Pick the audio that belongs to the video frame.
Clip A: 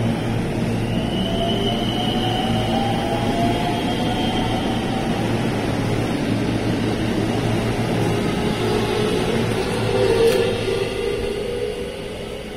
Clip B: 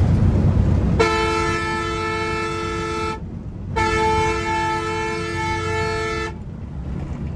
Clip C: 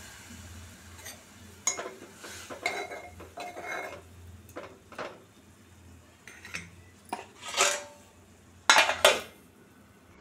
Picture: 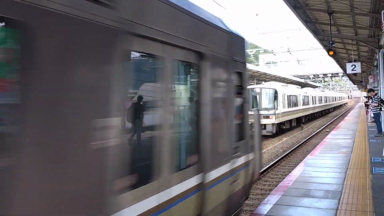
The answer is A